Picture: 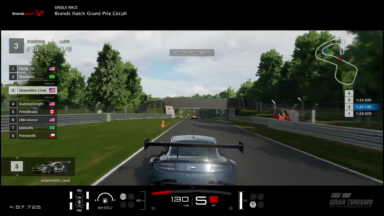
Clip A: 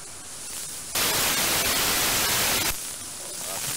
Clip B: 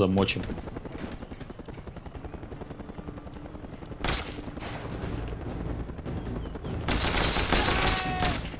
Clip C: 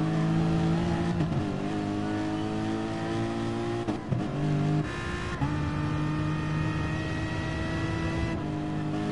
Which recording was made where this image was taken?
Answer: C